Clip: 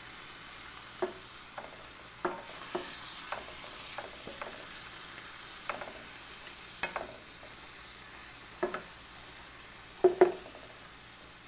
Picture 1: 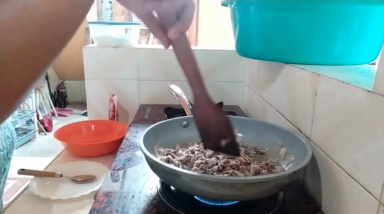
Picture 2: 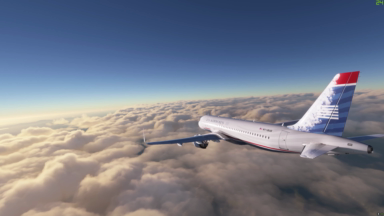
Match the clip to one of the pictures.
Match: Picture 1